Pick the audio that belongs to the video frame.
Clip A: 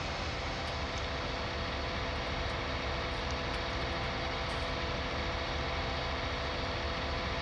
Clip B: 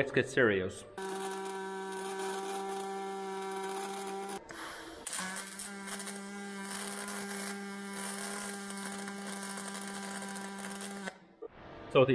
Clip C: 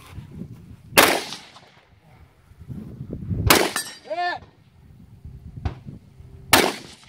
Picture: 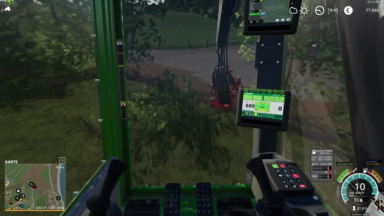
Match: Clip A